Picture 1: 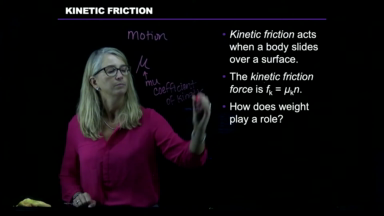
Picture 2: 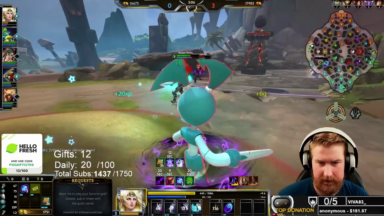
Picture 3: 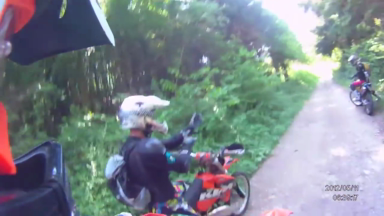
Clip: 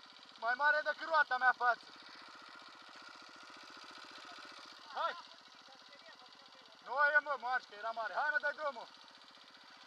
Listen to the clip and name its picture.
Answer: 3